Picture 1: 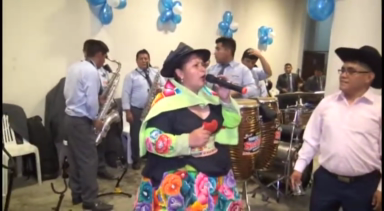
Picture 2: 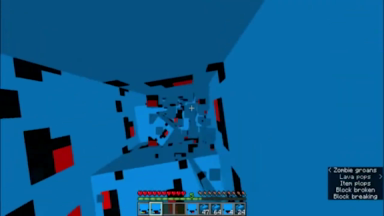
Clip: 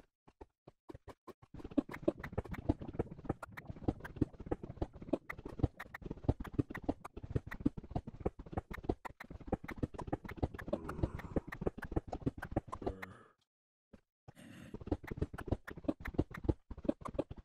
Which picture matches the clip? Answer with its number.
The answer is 2